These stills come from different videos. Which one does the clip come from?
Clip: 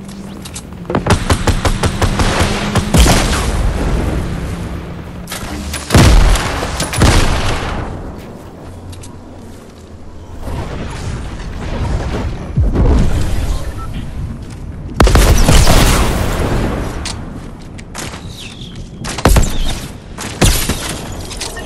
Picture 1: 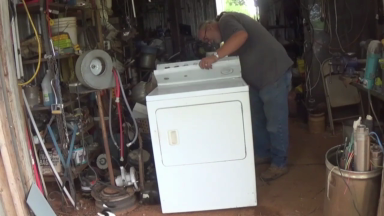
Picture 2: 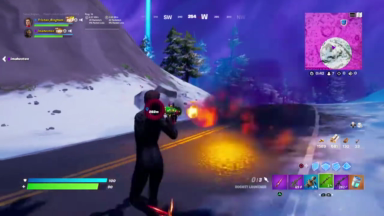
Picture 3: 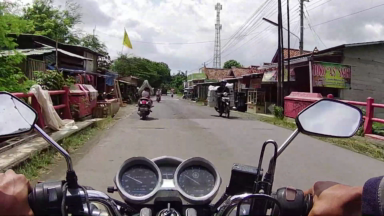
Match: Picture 2